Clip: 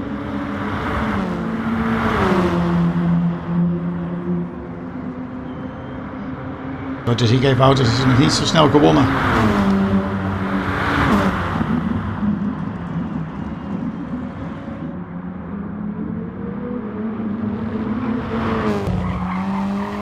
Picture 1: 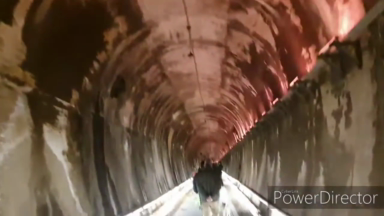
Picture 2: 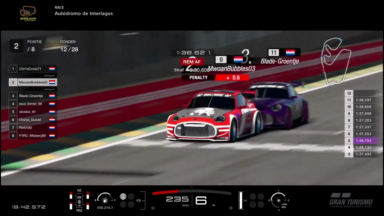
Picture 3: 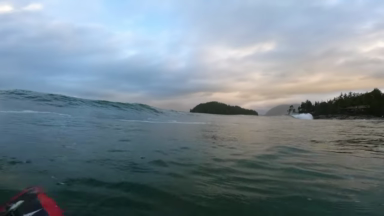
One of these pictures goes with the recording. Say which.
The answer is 2